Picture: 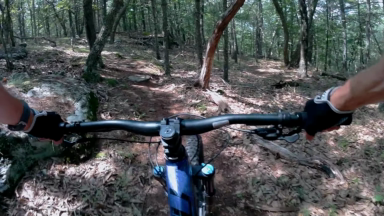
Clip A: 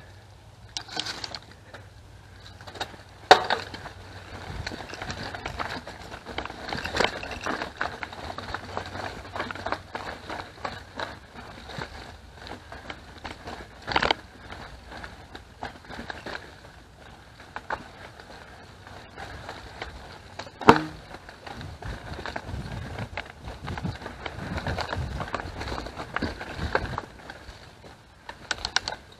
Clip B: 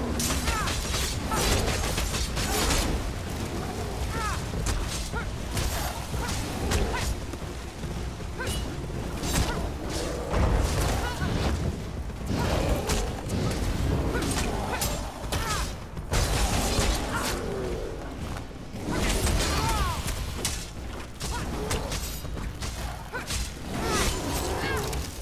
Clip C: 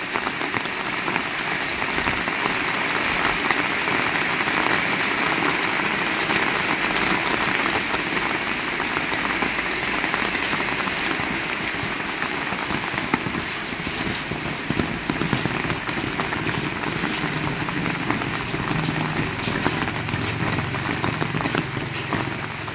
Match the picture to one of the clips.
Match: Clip A